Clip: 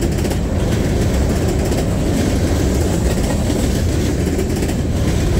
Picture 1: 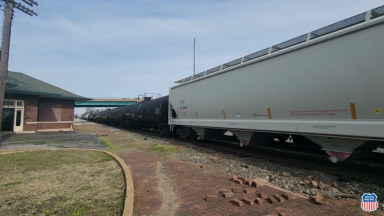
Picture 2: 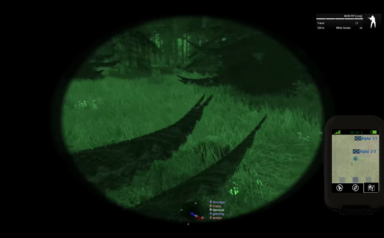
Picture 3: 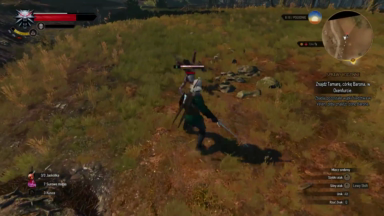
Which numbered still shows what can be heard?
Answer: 1